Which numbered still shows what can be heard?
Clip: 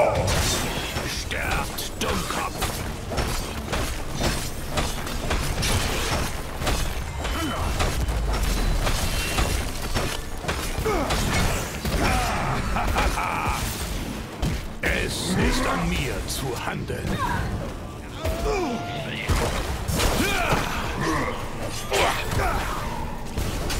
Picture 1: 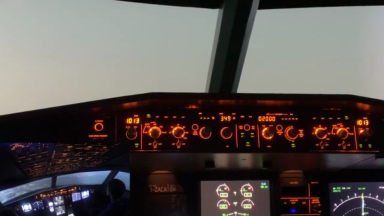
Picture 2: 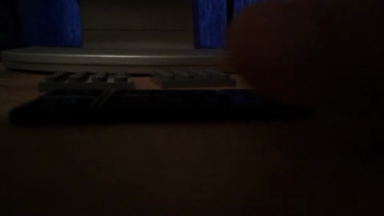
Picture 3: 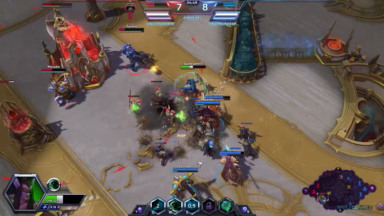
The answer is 3